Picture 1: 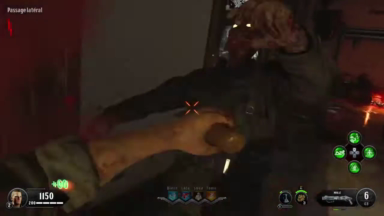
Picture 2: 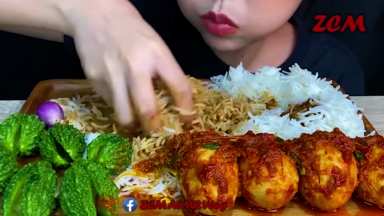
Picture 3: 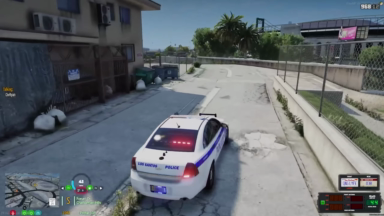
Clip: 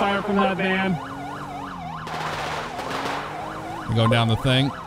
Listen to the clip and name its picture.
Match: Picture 3